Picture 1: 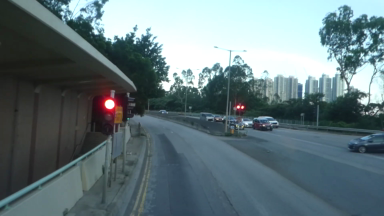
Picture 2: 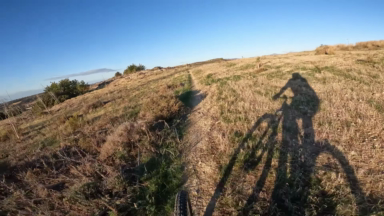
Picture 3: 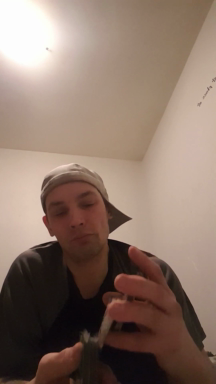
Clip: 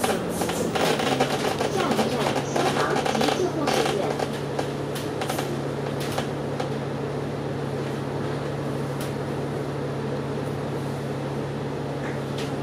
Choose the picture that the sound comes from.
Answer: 1